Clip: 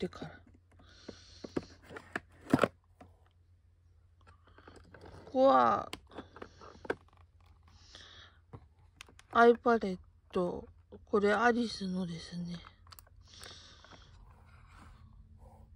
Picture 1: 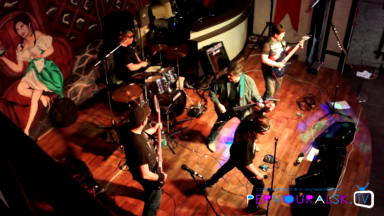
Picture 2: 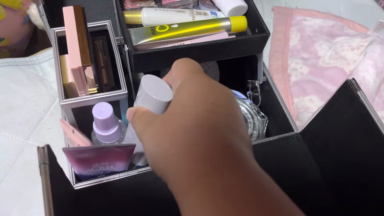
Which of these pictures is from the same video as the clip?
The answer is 2